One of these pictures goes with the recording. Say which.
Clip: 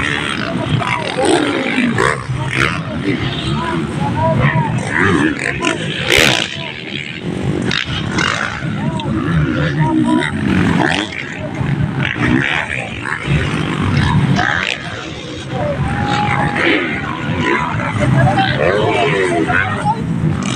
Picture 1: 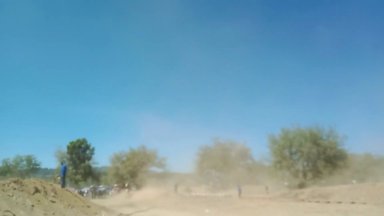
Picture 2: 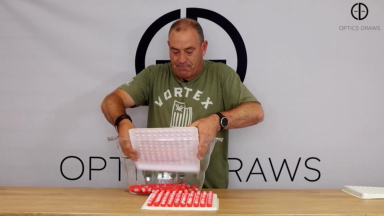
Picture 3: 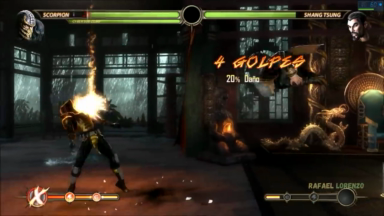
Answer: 1